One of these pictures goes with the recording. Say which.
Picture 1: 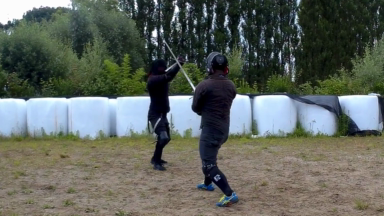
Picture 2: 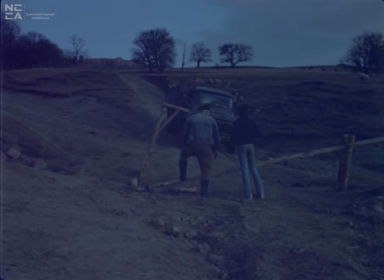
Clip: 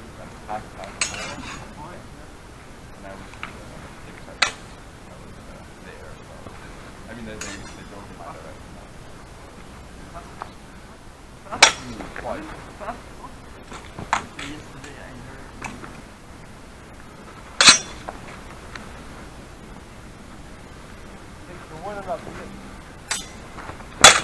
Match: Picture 1